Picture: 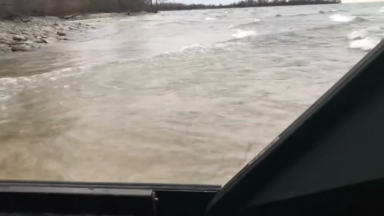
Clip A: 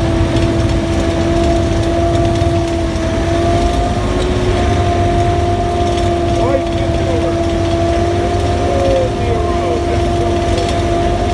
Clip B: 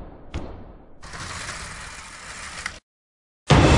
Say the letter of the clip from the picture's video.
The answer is A